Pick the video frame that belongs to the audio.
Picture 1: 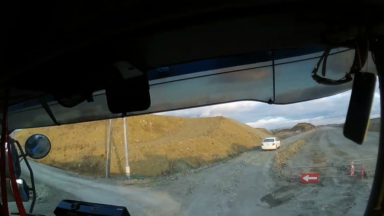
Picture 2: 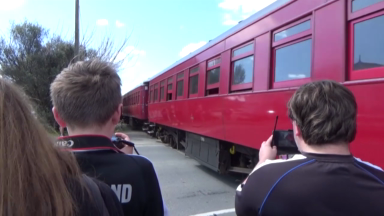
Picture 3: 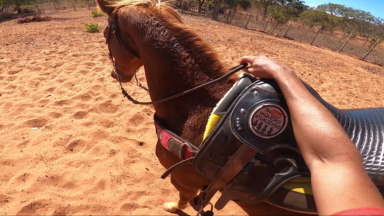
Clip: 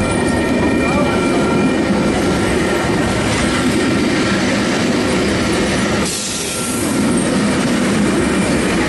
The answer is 2